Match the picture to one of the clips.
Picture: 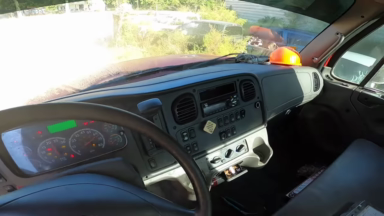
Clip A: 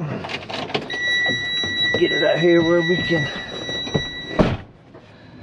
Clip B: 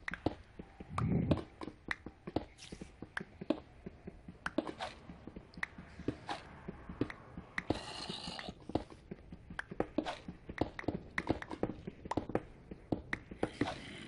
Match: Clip A